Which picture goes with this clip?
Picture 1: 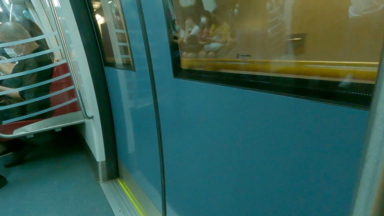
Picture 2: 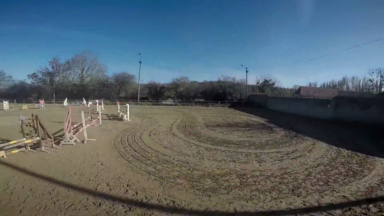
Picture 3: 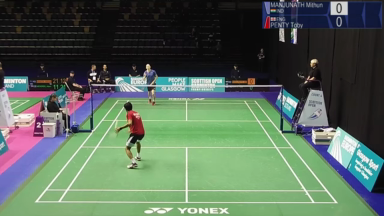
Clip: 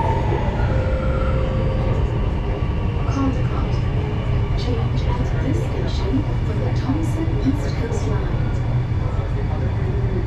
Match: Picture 1